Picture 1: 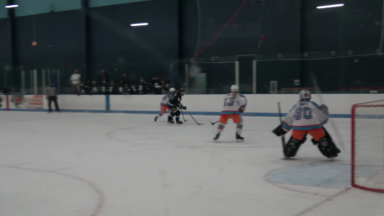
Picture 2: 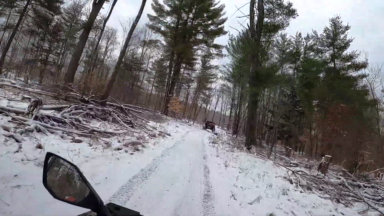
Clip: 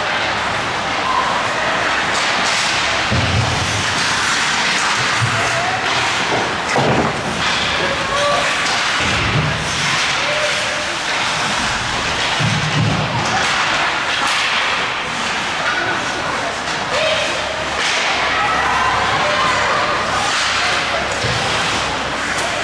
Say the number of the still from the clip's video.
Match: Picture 1